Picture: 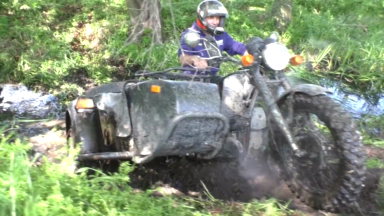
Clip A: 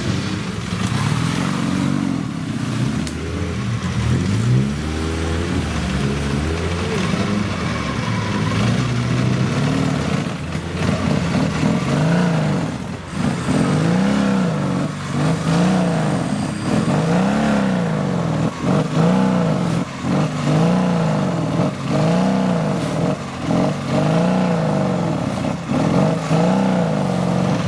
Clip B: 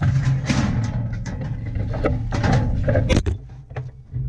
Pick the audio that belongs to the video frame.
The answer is A